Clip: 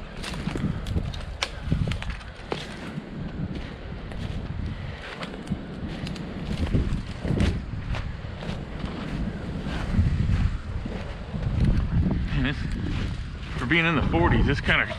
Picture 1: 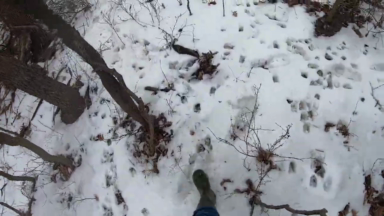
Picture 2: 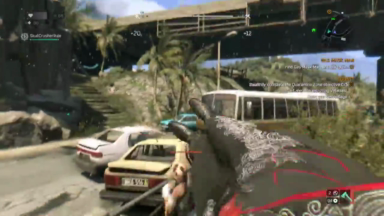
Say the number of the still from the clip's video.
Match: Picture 1